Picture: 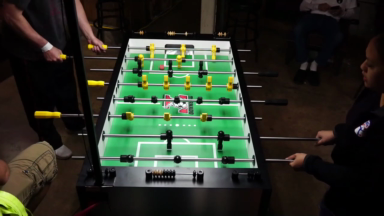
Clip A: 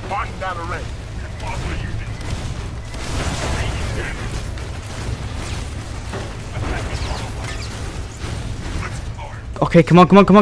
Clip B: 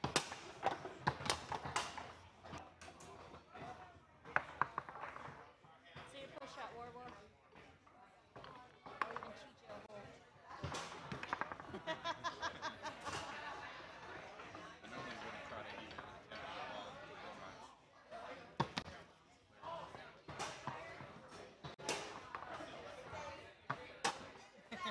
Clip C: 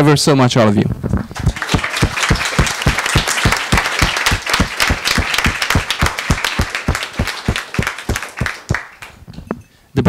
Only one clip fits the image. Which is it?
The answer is B